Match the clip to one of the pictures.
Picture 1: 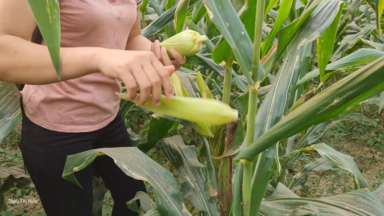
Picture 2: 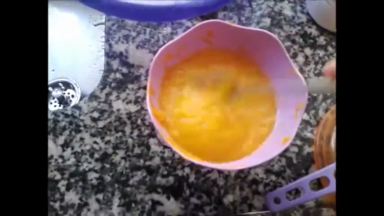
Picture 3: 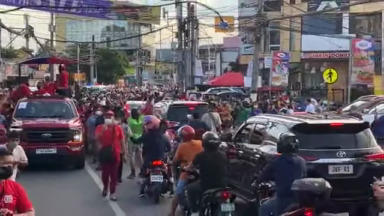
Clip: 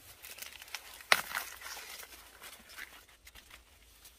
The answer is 1